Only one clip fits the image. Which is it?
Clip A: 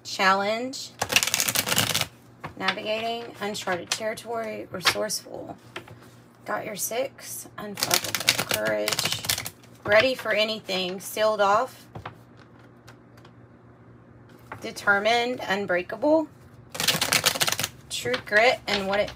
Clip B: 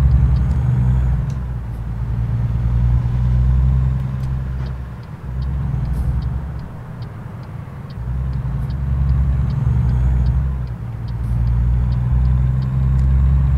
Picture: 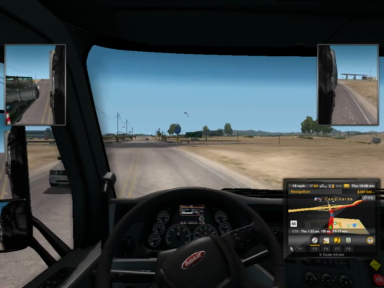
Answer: B